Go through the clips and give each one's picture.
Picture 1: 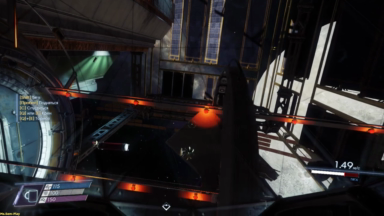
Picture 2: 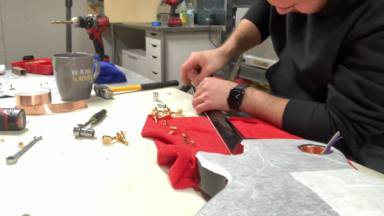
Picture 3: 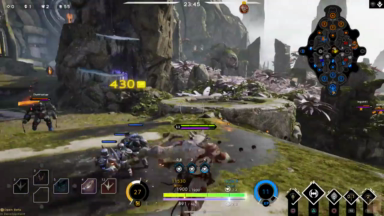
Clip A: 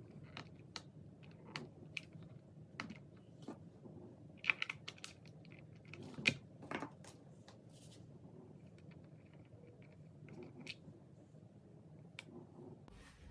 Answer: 2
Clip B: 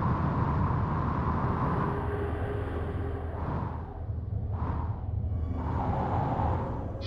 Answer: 1